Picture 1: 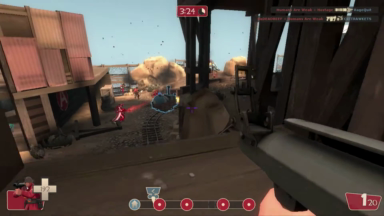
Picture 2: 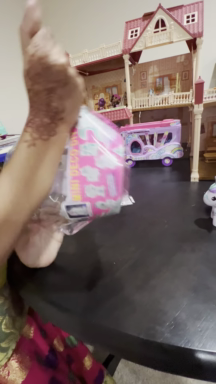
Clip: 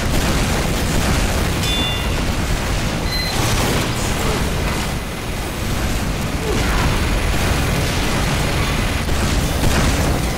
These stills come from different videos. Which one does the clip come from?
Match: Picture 1